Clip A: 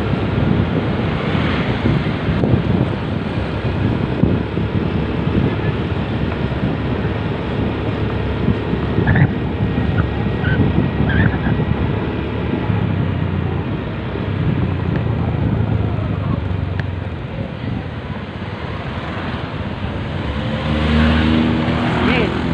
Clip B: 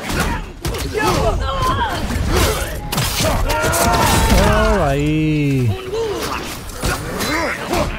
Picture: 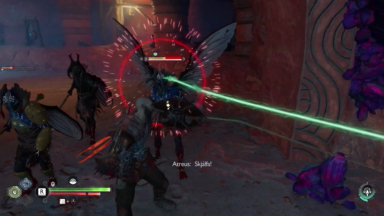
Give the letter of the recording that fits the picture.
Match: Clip B